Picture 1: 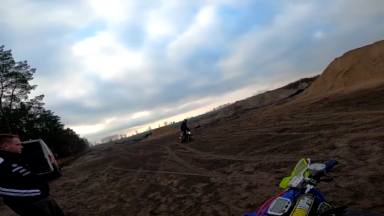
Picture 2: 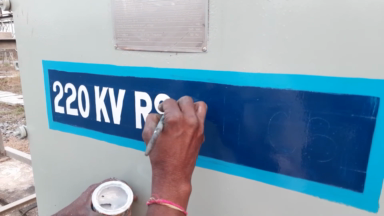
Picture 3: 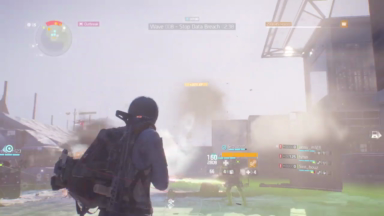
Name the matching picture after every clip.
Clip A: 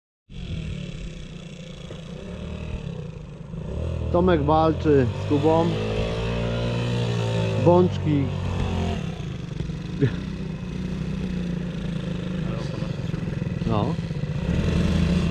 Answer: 1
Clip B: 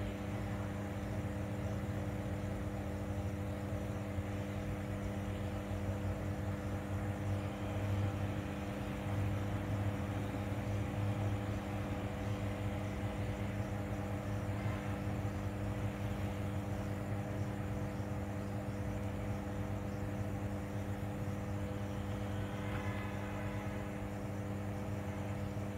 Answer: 2